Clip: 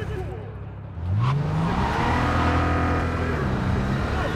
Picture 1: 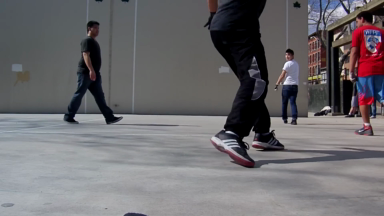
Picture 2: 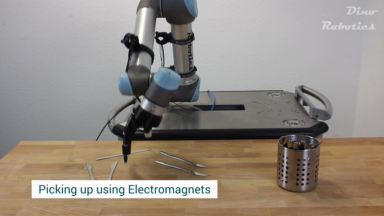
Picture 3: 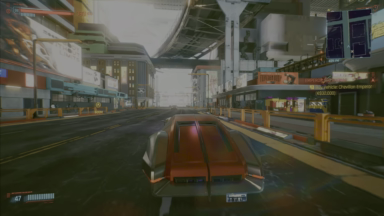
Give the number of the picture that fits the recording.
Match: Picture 3